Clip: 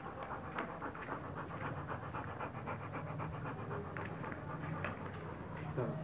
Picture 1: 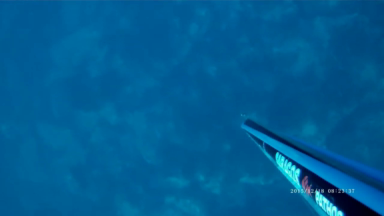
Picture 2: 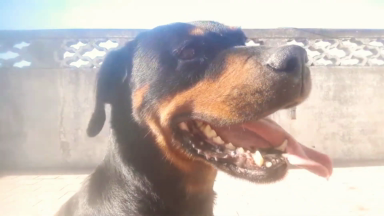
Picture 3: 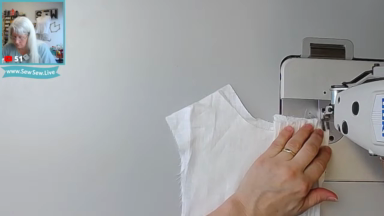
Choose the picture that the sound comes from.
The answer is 2